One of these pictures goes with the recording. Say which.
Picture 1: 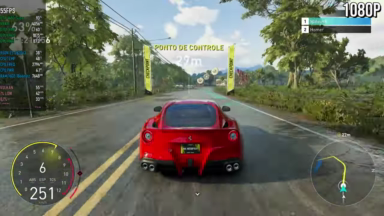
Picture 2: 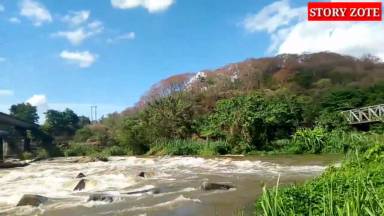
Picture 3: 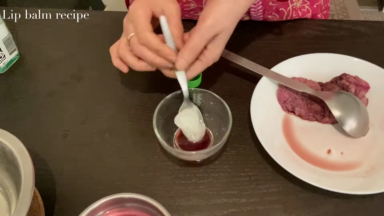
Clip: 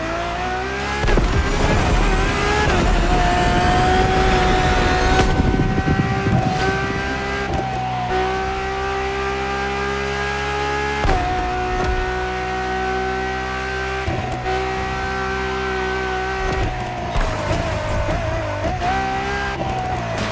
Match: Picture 1